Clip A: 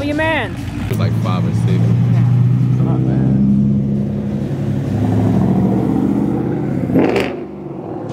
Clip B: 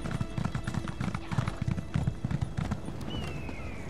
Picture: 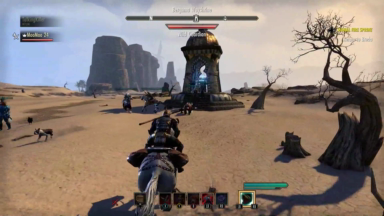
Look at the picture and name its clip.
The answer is B